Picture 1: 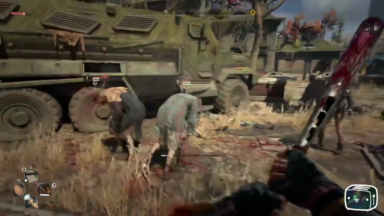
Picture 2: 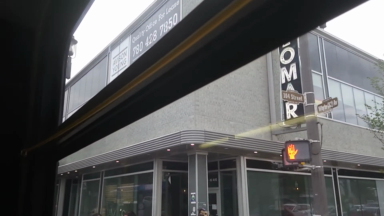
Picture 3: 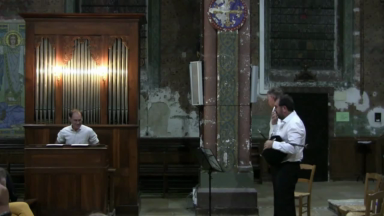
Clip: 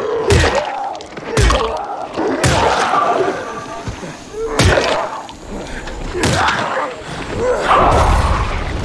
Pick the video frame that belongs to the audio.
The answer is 1